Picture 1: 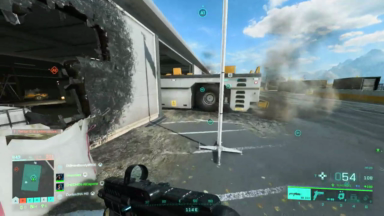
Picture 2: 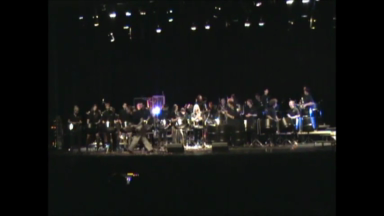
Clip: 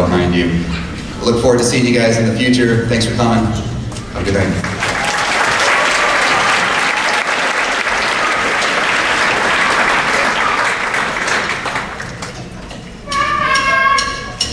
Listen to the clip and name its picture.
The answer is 2